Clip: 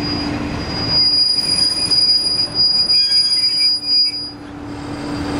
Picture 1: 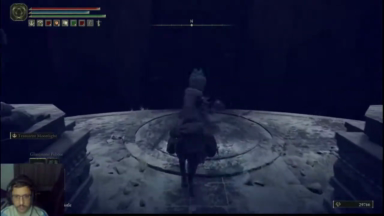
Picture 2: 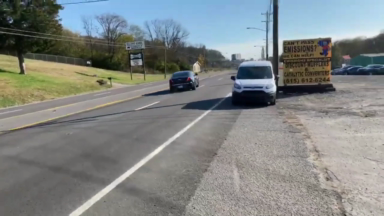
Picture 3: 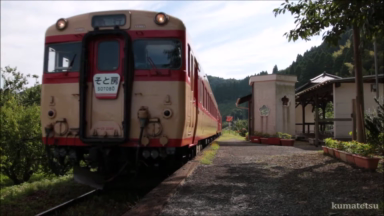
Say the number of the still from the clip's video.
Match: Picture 3